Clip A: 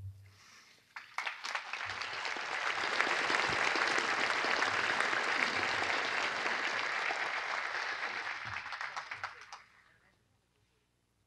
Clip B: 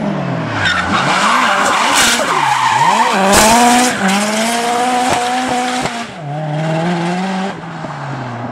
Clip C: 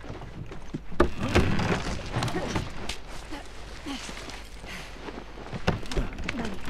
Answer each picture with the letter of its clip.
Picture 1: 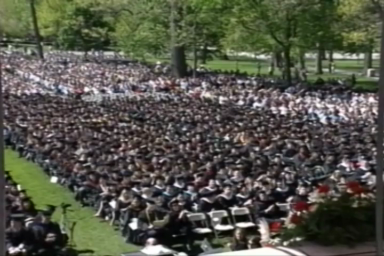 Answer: A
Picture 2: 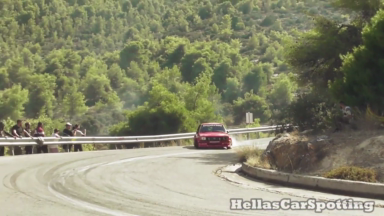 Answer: B